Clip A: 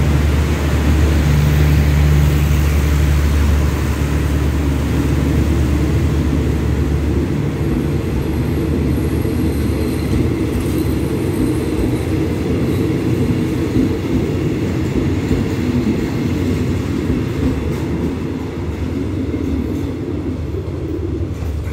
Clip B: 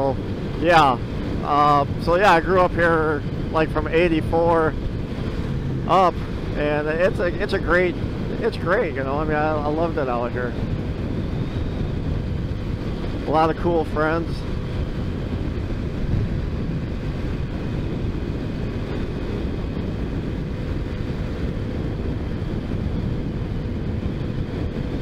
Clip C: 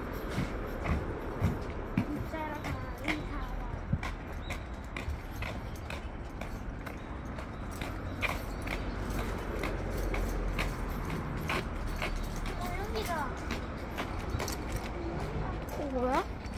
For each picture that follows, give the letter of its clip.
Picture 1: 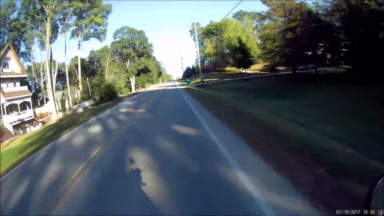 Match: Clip B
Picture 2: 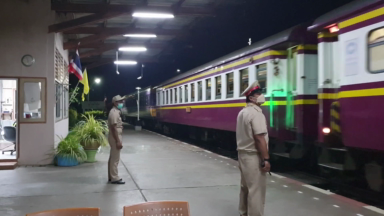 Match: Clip A